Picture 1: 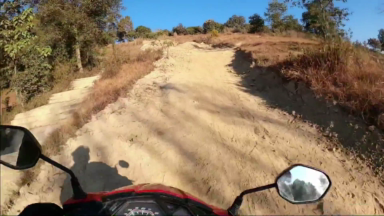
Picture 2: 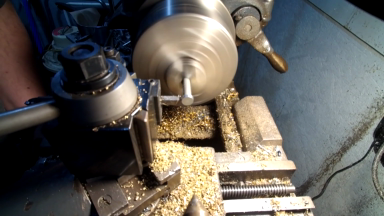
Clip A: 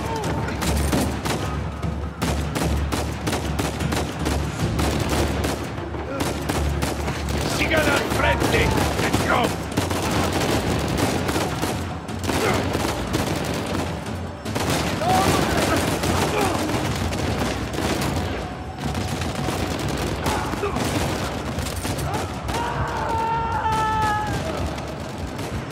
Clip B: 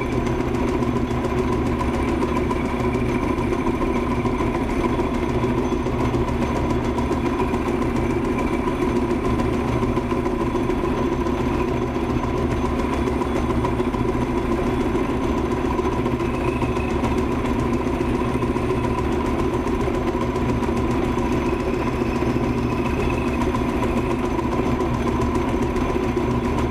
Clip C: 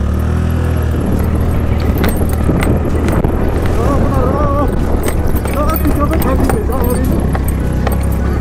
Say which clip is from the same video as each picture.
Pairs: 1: C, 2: B